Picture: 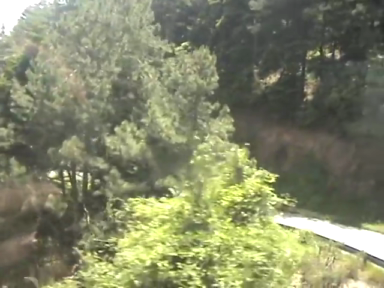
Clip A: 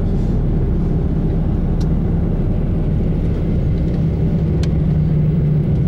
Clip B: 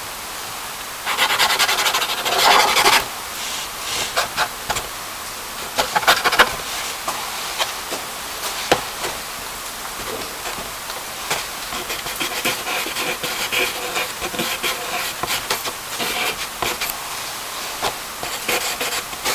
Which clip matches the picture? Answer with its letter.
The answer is A